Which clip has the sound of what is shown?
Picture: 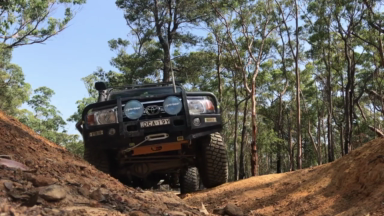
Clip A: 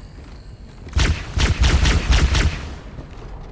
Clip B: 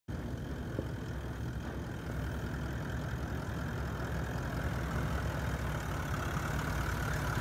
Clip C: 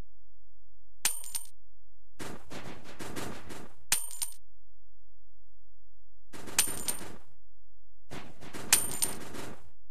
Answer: B